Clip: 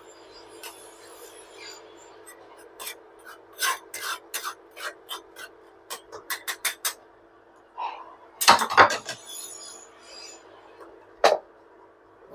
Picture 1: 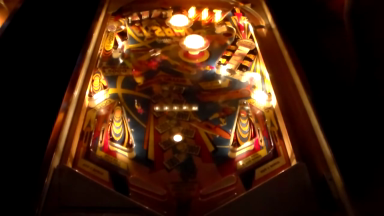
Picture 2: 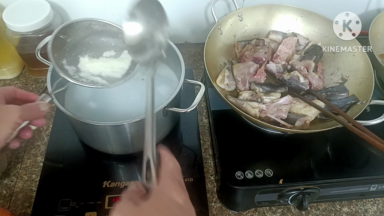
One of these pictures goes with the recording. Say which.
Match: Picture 2